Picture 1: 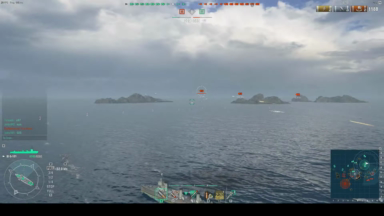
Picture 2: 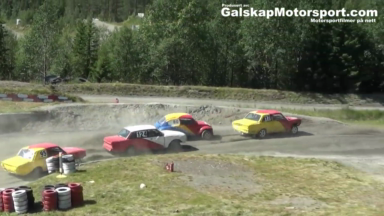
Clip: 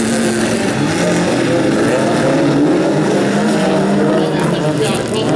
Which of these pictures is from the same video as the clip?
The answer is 2